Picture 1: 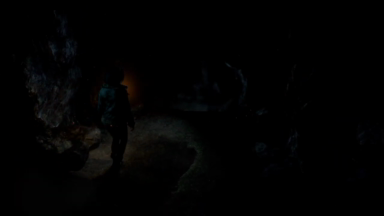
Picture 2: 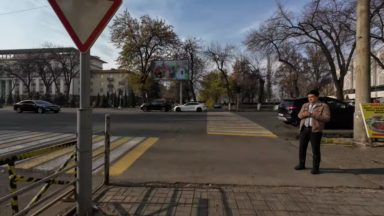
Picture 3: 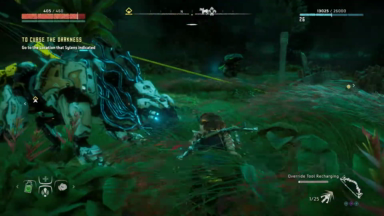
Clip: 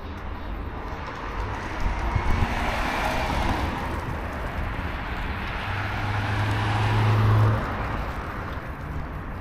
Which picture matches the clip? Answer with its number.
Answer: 2